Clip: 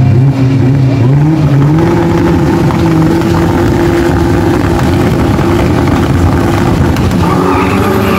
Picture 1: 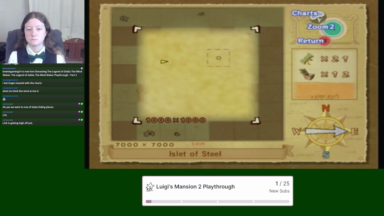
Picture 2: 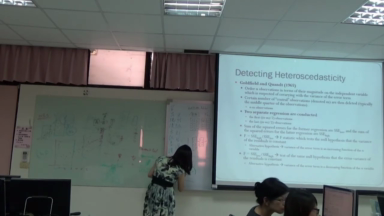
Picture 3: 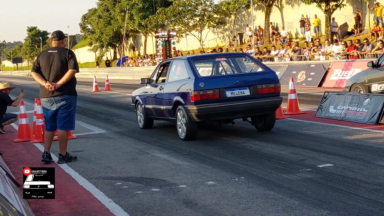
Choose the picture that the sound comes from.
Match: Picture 3